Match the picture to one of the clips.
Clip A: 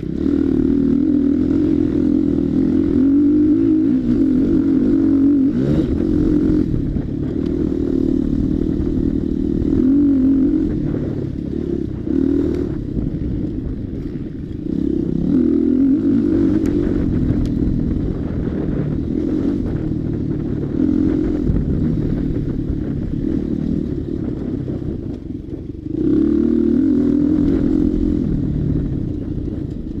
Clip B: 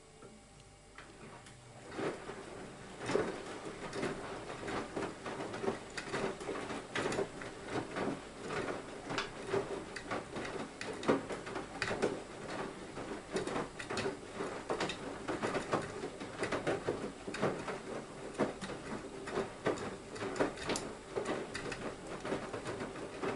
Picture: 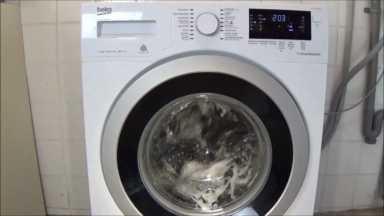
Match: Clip B